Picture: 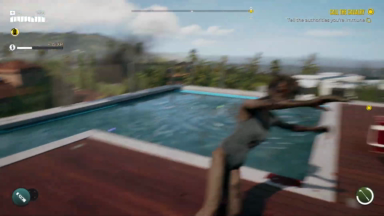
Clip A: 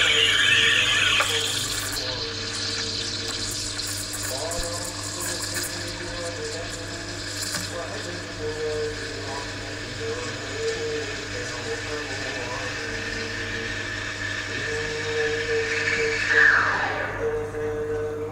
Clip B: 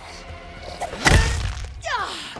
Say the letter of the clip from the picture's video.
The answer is B